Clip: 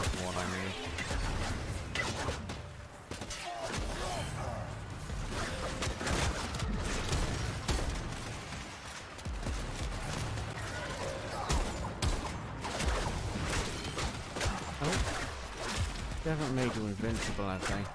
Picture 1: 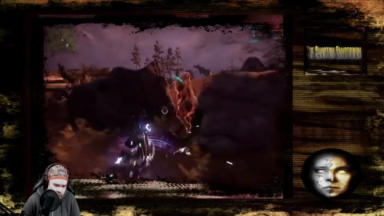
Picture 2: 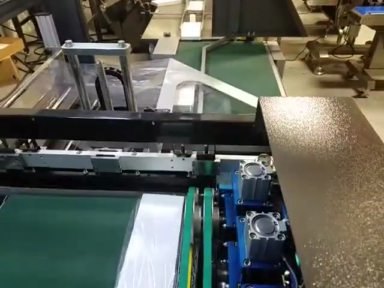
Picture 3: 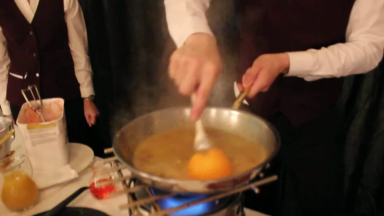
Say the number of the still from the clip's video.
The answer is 1